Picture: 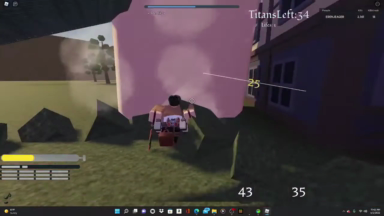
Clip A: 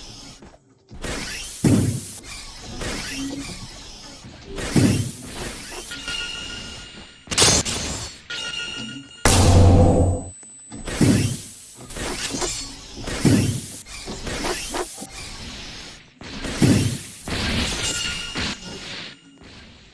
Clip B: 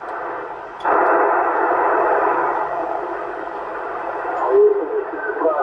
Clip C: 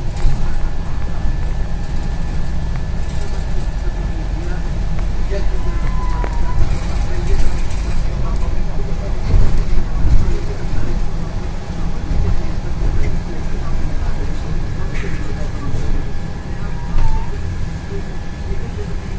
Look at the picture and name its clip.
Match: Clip A